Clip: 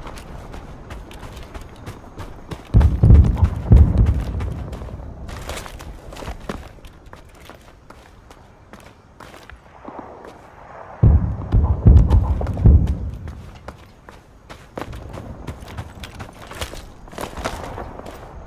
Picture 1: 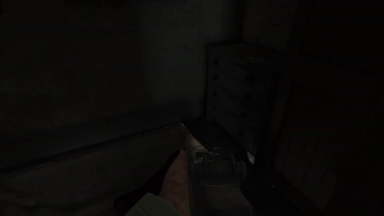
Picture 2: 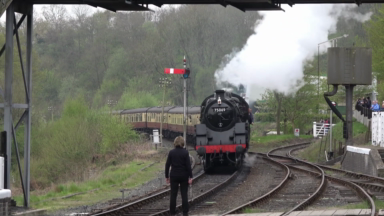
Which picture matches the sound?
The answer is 1